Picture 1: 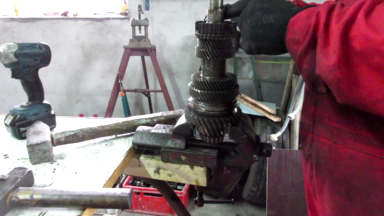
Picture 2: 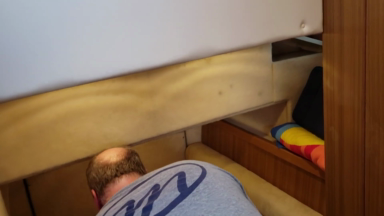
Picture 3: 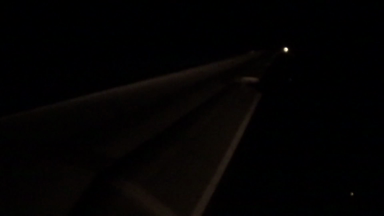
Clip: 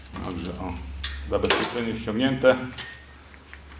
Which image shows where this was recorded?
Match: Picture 1